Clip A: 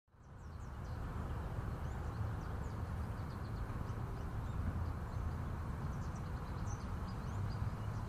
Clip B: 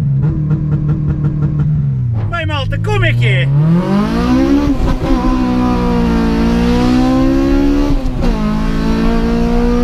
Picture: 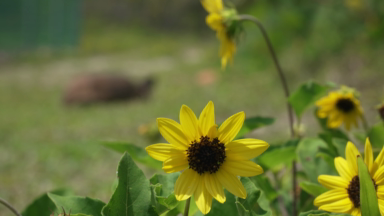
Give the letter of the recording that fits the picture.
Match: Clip A